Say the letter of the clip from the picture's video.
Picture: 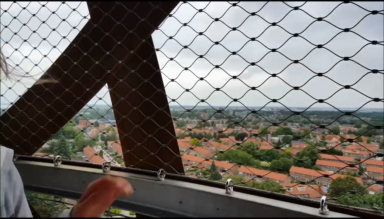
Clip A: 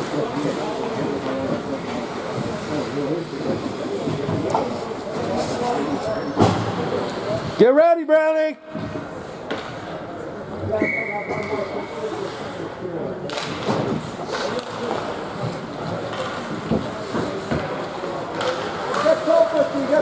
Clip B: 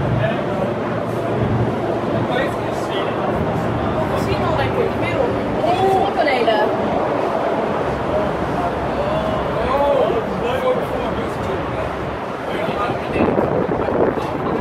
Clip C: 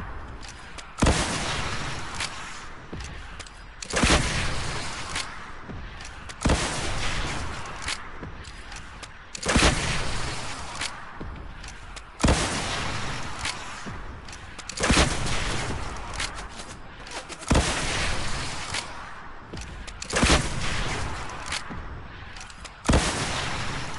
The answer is B